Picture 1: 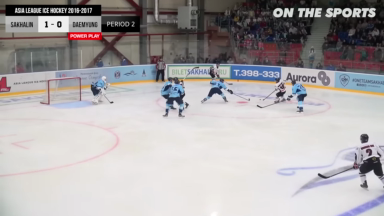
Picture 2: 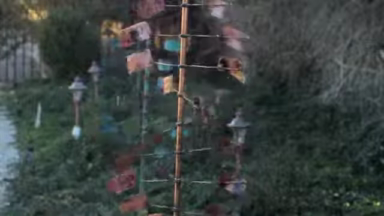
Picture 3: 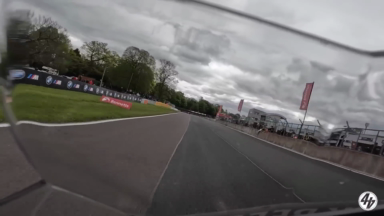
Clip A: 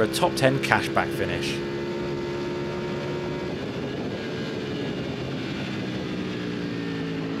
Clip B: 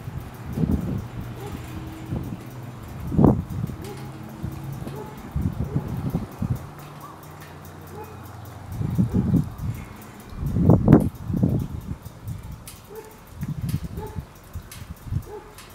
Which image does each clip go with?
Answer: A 3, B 2